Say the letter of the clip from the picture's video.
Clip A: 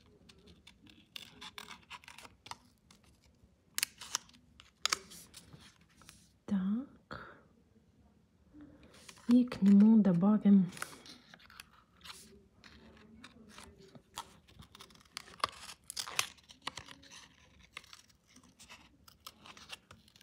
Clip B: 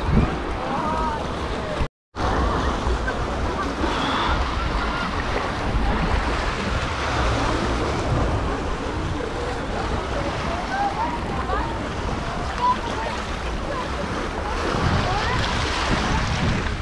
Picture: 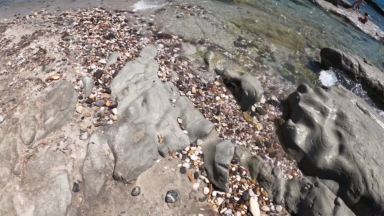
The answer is B